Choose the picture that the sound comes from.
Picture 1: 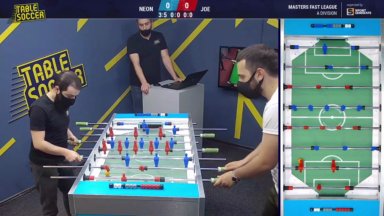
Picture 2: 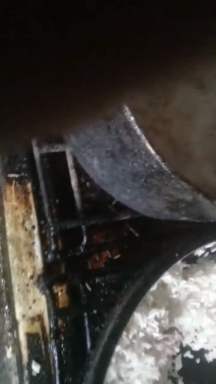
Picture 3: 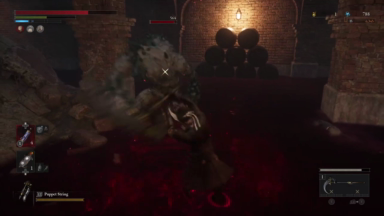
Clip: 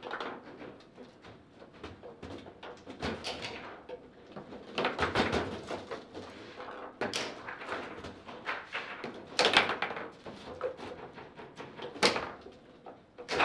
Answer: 1